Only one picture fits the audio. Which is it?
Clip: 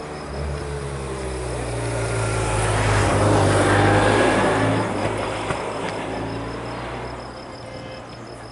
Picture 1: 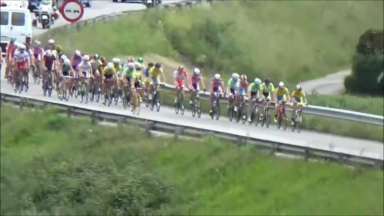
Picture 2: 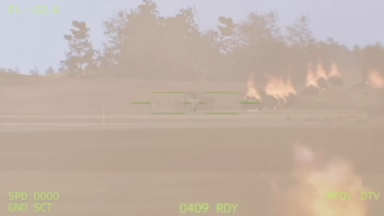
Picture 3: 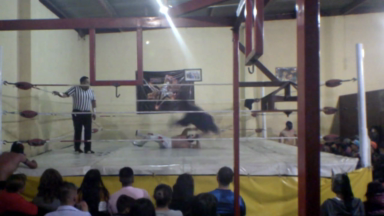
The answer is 1